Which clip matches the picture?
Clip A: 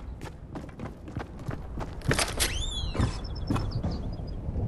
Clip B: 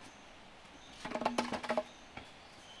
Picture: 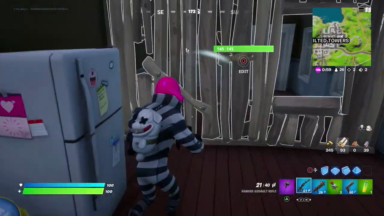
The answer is A